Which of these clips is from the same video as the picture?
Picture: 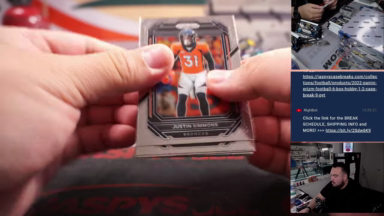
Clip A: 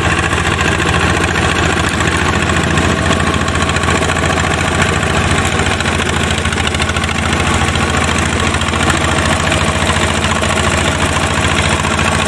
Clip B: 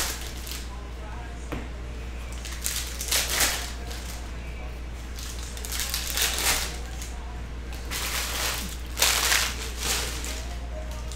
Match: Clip B